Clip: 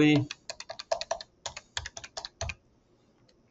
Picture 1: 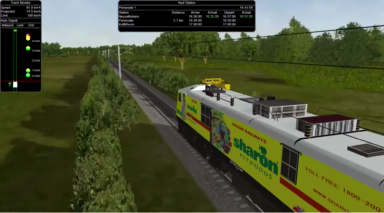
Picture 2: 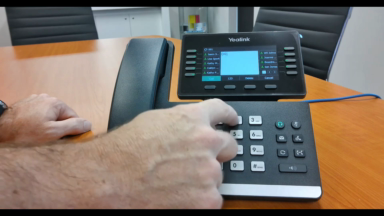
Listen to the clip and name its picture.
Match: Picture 2